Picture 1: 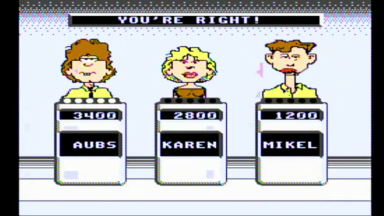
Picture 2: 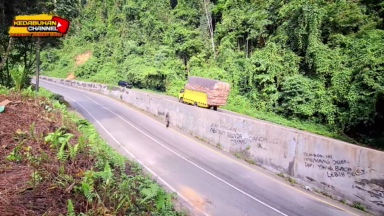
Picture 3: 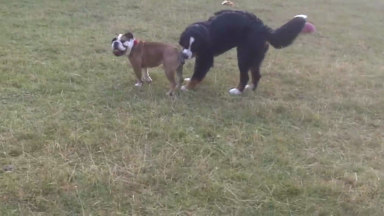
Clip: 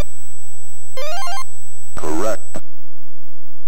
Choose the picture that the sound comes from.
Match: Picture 1